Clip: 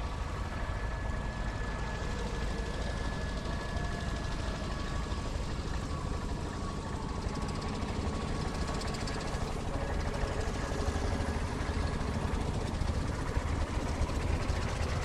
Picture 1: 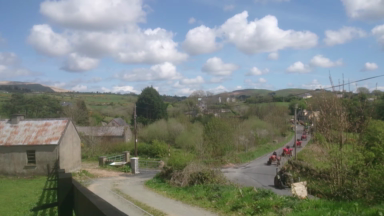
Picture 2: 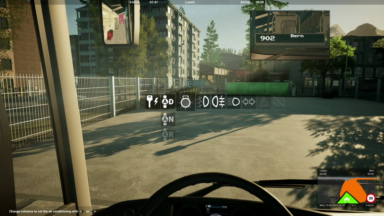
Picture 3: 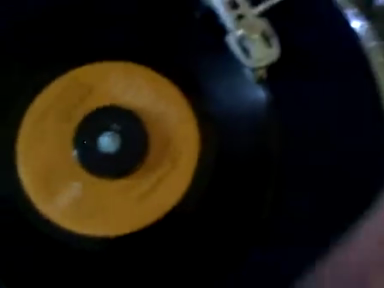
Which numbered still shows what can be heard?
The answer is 1